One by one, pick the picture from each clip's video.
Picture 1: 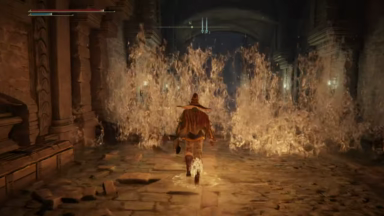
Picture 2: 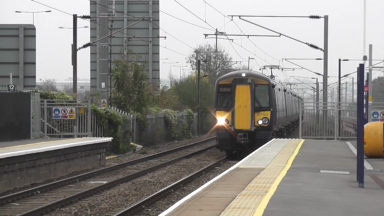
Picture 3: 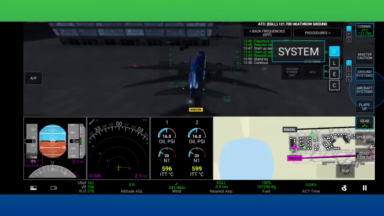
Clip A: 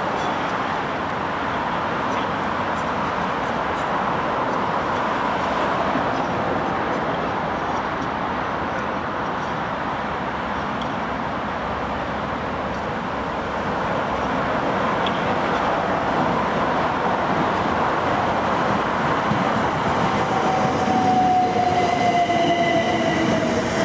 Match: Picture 2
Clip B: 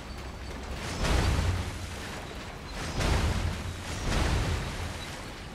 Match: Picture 1